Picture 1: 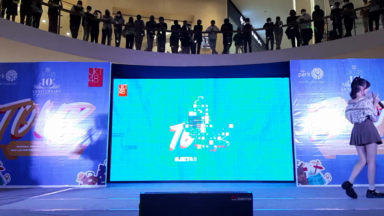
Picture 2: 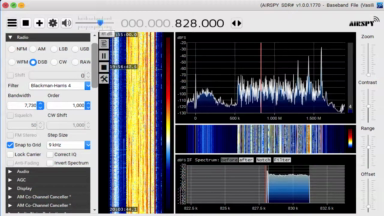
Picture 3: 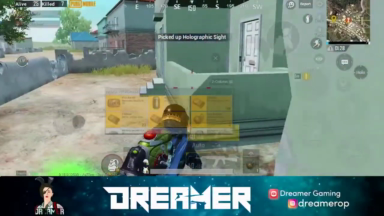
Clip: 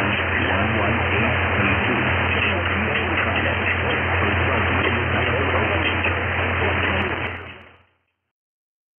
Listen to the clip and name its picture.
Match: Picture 2